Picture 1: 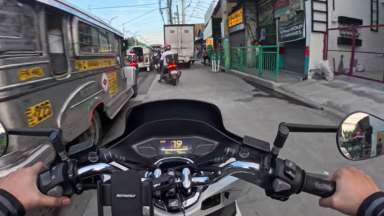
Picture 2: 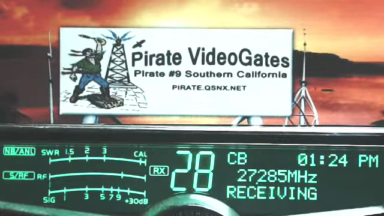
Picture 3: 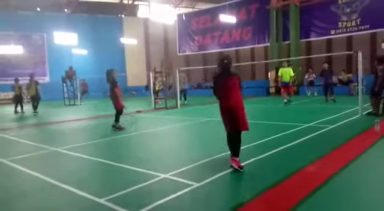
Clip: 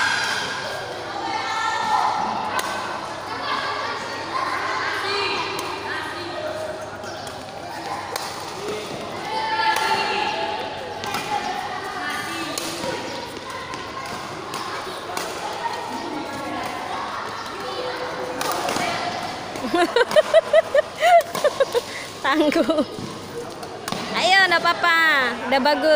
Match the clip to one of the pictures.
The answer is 3